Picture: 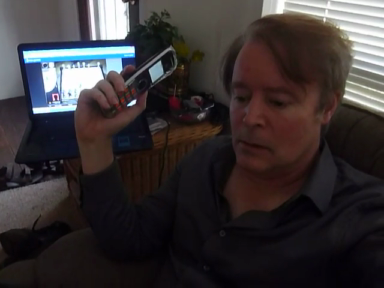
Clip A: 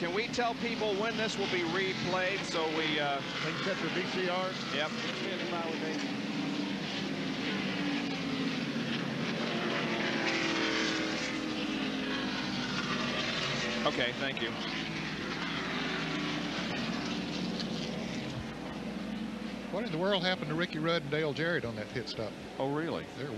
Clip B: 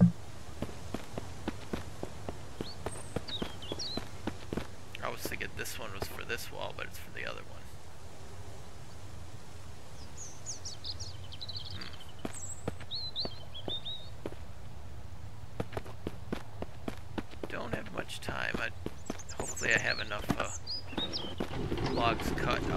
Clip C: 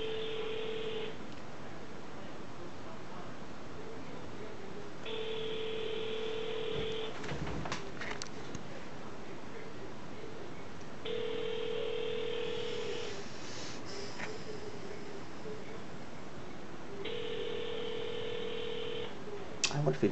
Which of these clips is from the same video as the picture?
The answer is C